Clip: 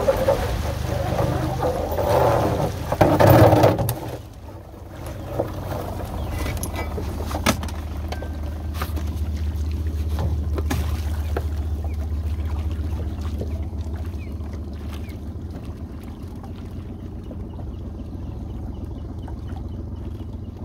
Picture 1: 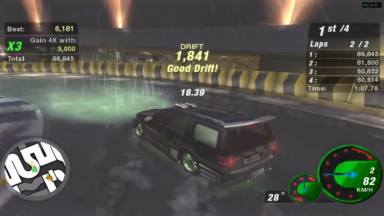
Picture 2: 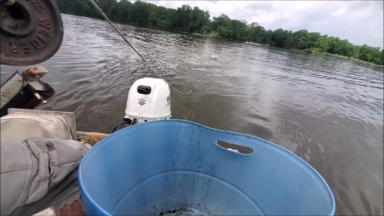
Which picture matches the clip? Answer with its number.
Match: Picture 2